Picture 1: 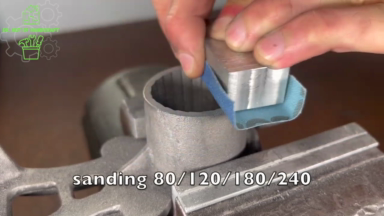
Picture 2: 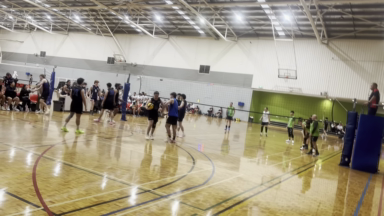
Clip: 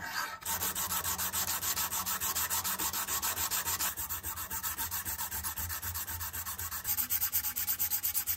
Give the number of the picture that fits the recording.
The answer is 1